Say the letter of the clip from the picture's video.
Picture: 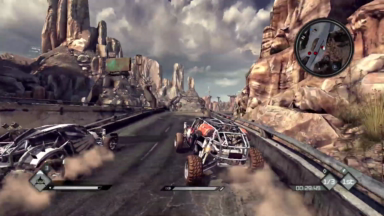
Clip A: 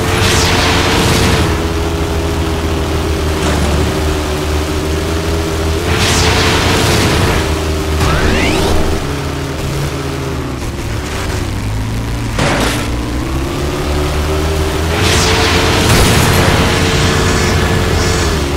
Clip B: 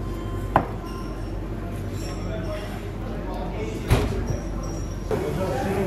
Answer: A